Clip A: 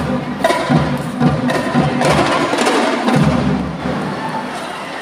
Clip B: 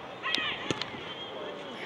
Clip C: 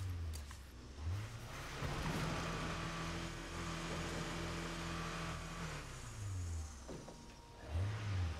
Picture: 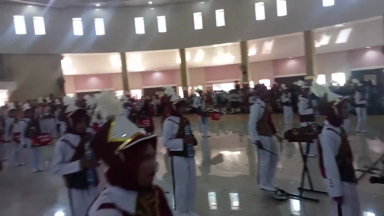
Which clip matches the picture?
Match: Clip A